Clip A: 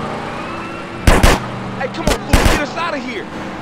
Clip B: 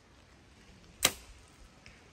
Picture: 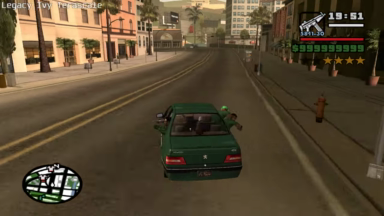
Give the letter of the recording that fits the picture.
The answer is A